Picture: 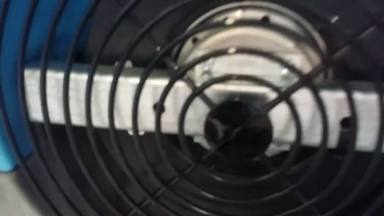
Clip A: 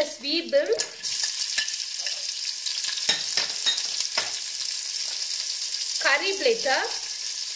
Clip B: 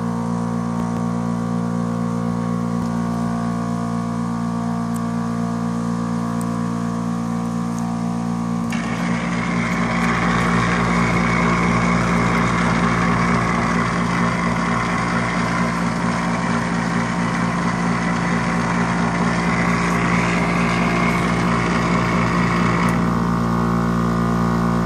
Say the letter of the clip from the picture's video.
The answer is B